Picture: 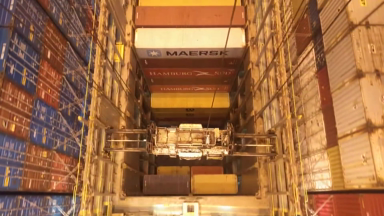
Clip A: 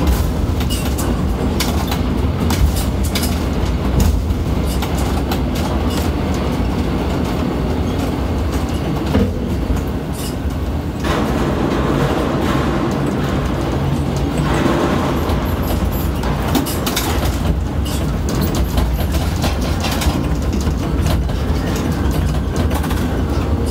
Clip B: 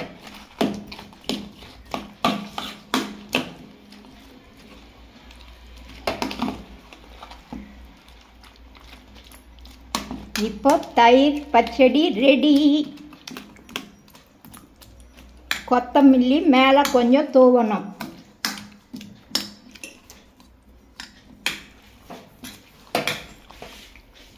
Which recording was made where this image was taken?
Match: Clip A